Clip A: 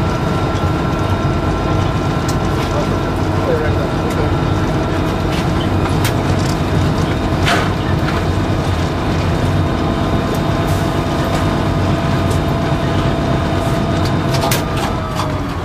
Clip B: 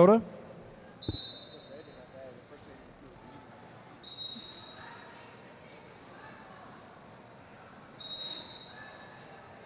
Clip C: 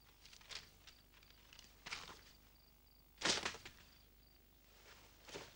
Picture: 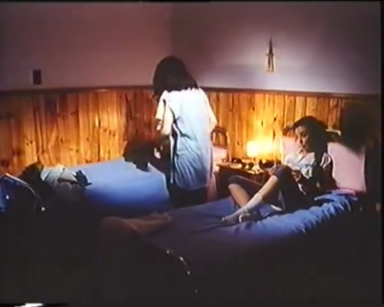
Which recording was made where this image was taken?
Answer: C